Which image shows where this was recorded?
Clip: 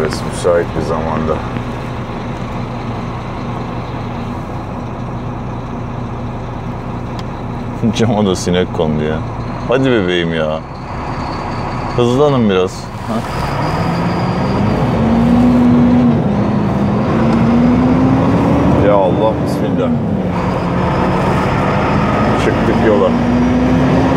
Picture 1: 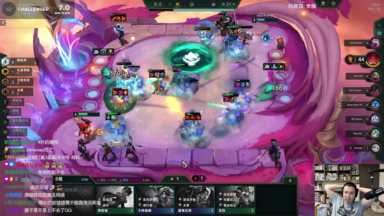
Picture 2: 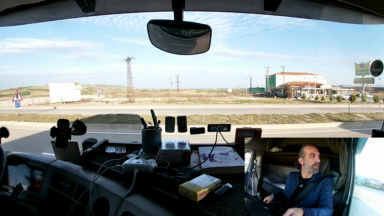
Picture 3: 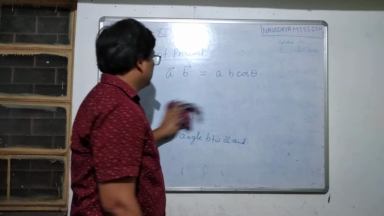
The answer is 2